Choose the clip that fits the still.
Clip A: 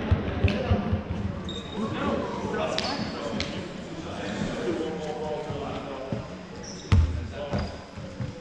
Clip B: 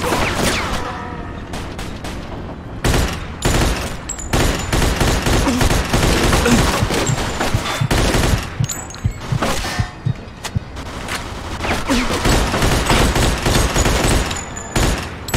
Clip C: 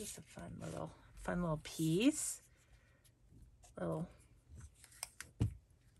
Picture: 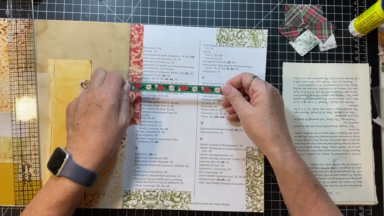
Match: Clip C